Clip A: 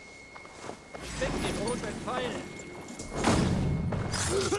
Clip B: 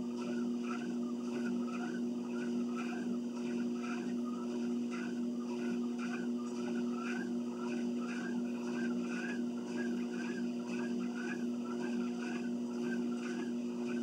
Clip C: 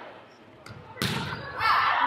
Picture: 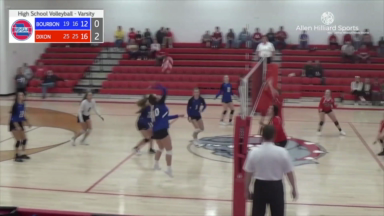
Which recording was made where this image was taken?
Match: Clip C